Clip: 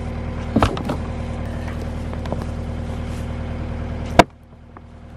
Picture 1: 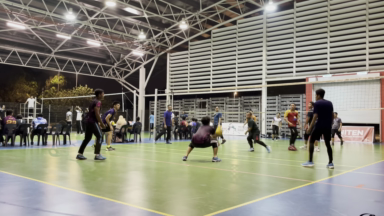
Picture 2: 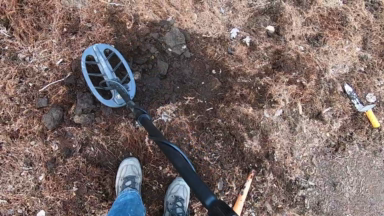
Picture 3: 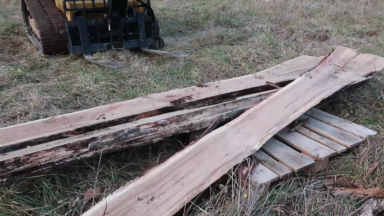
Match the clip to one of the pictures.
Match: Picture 3